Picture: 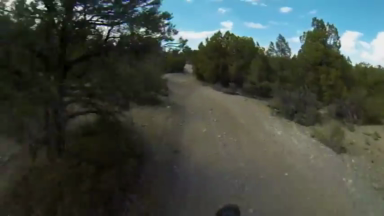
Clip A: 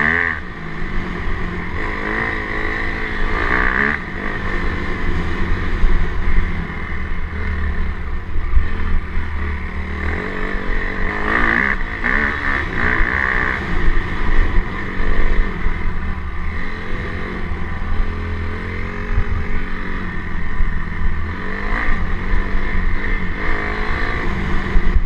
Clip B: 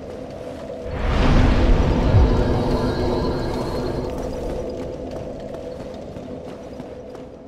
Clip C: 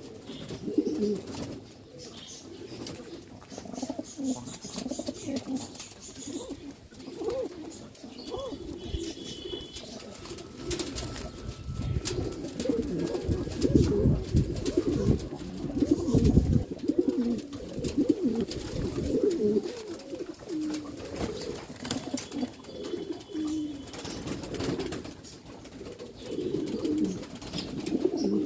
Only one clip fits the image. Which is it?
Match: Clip A